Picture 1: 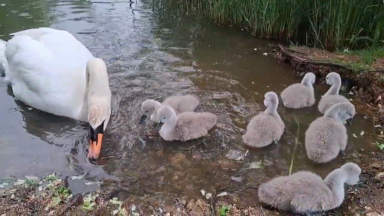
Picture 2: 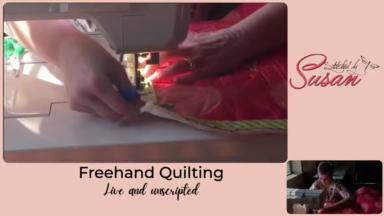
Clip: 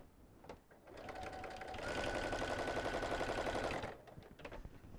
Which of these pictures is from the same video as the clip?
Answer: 2